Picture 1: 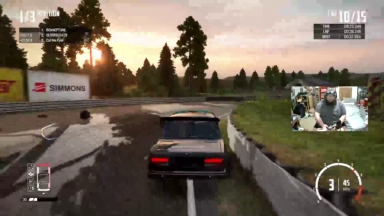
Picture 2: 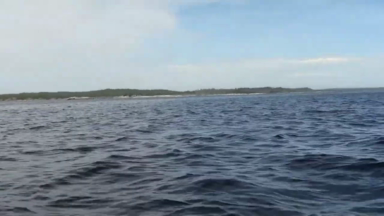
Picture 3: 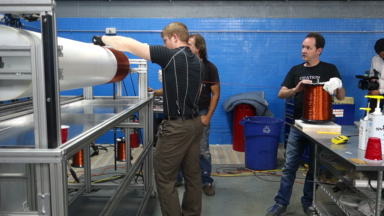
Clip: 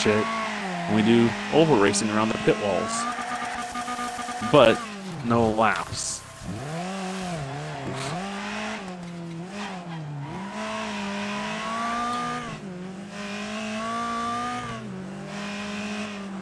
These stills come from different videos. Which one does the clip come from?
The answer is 1